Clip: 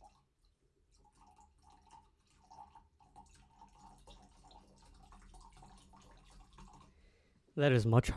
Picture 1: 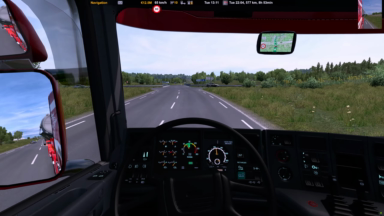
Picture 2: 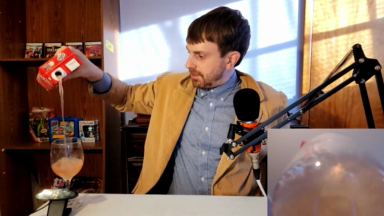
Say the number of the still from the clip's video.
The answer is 2